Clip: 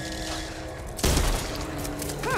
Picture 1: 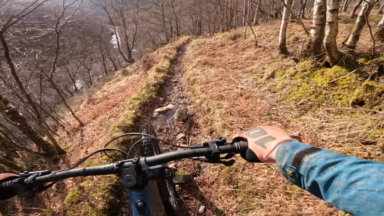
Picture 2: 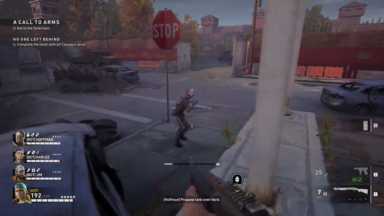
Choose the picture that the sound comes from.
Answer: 2